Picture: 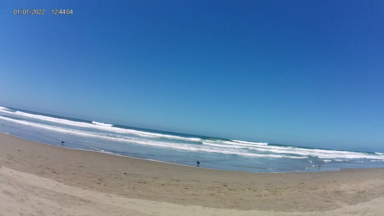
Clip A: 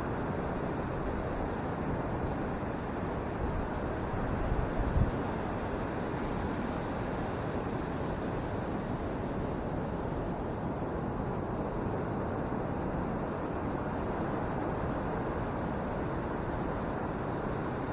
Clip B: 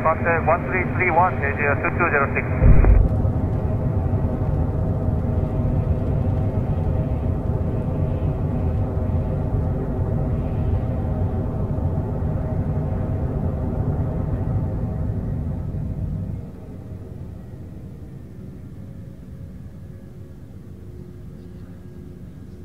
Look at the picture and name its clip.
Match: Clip A